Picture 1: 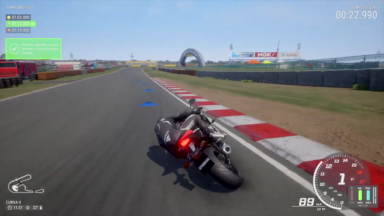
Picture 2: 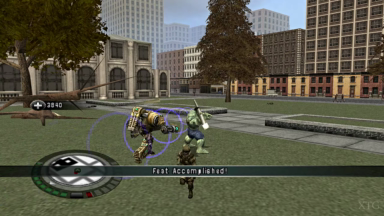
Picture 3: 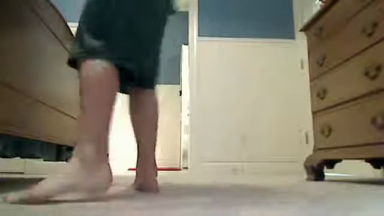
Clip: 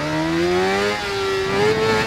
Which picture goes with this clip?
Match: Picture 1